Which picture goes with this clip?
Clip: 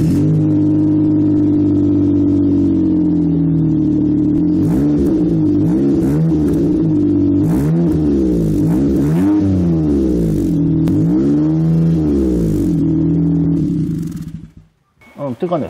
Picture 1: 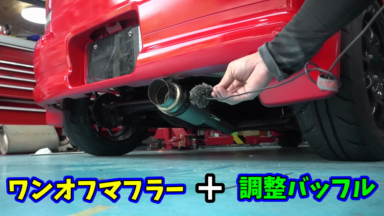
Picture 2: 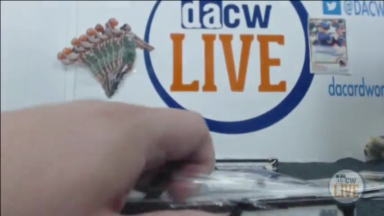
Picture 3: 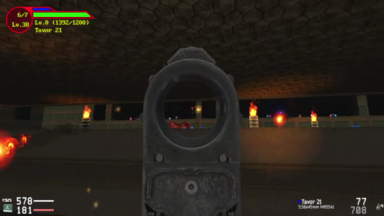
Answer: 1